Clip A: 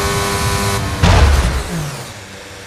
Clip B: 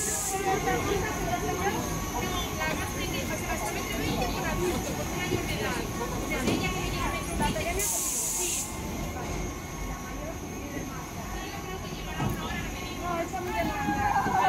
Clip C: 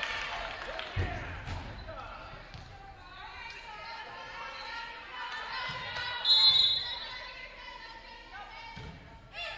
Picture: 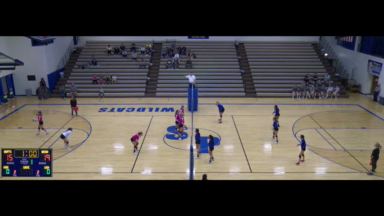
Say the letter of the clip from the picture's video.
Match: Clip C